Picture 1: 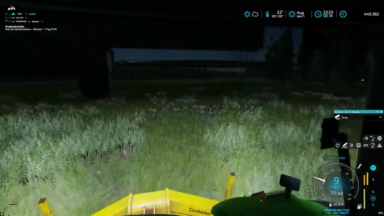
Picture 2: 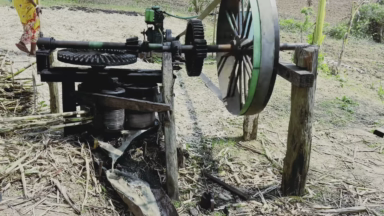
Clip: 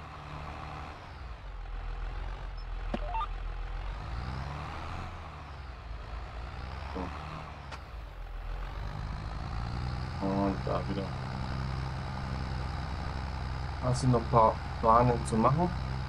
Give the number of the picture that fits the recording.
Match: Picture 1